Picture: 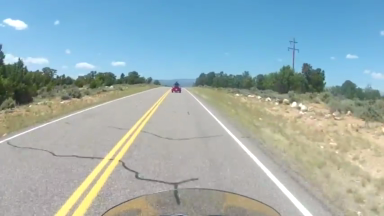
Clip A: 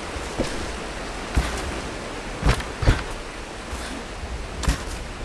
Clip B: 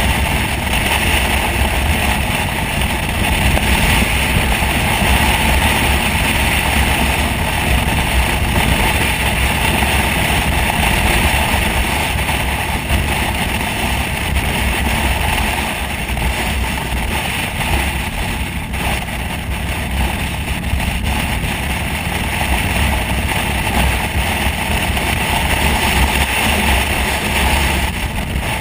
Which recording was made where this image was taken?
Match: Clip B